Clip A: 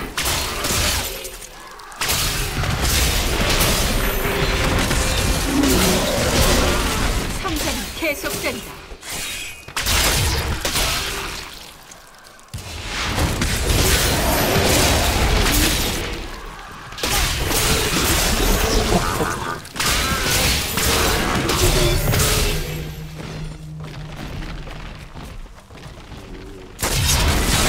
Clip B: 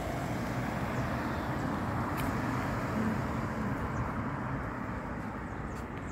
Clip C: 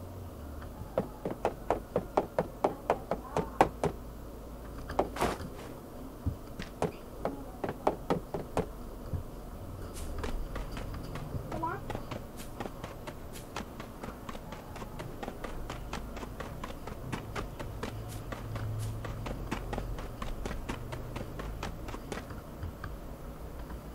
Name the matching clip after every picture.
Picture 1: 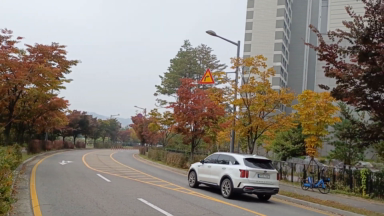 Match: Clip B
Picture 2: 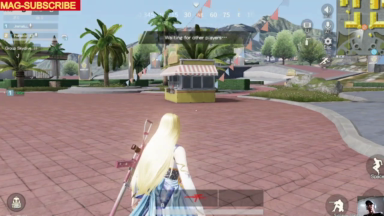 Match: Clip C